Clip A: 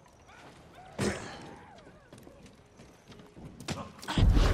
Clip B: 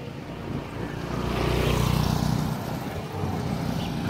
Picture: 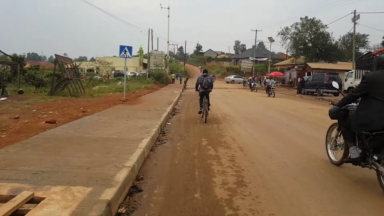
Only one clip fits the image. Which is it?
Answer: B